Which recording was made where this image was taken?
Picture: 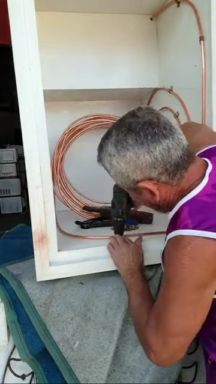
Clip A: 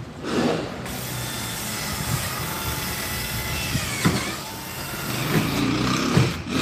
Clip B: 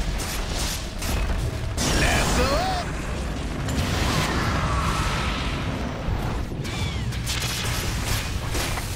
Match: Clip A